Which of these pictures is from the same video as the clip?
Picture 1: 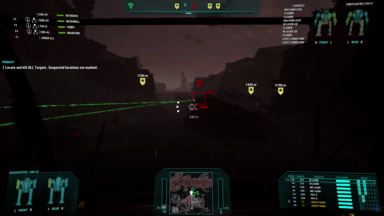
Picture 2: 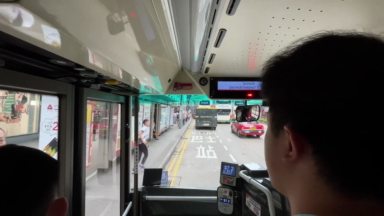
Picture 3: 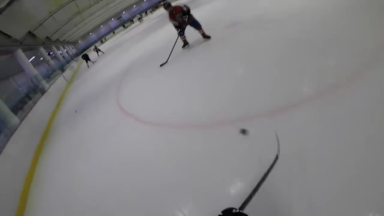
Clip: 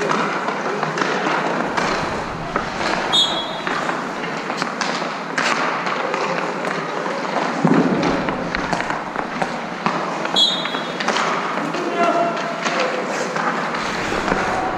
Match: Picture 3